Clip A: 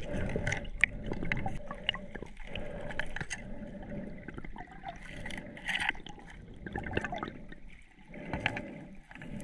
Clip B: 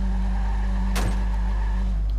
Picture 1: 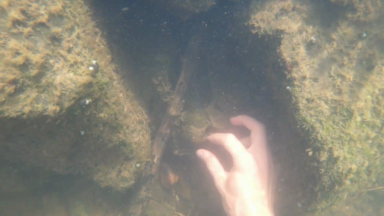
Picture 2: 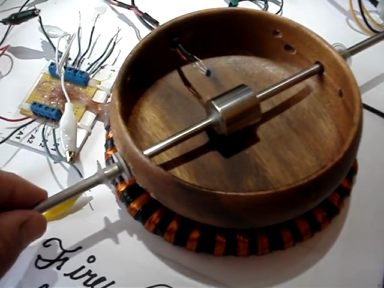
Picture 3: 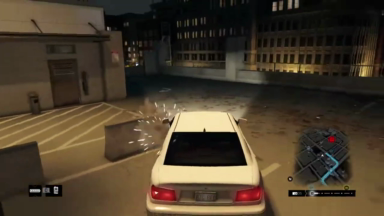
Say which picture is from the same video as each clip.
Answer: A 1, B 3